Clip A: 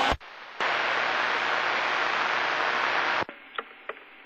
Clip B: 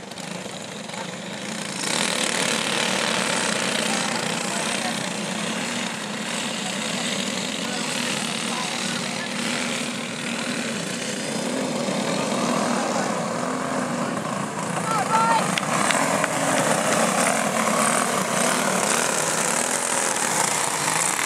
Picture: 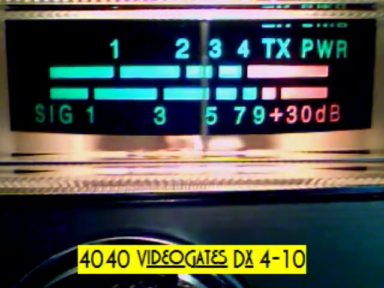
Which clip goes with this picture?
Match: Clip A